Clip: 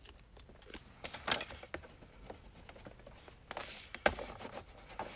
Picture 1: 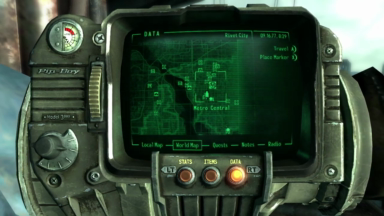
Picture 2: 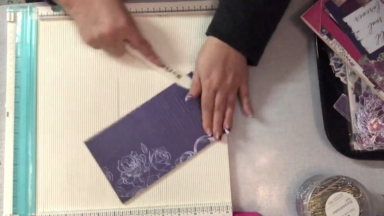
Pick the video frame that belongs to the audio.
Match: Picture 2